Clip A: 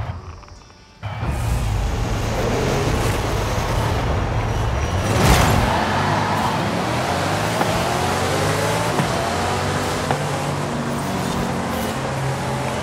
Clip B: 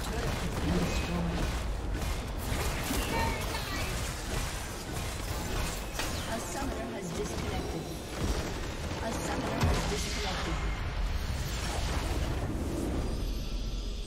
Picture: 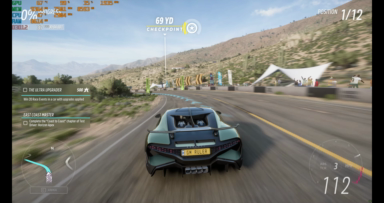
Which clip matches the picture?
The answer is A